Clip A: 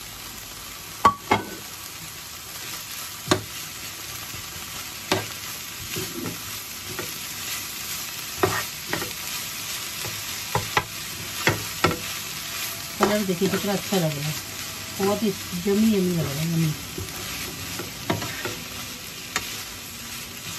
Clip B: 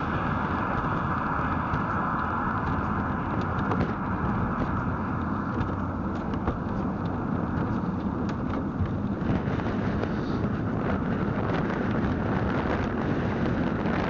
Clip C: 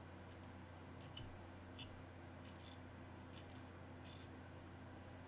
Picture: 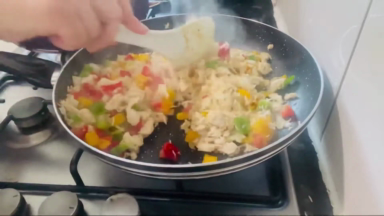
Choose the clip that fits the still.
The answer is A